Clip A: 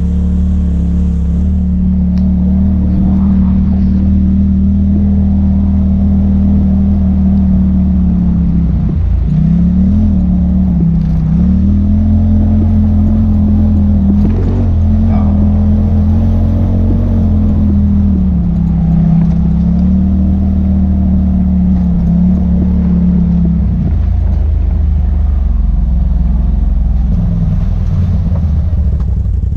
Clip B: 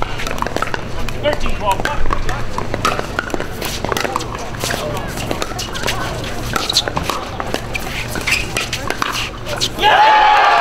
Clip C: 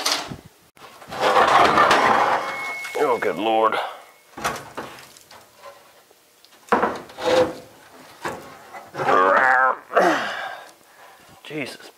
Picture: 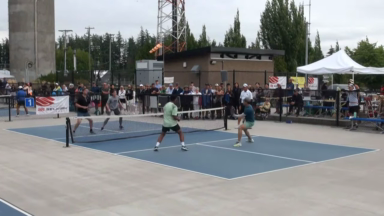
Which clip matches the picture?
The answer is B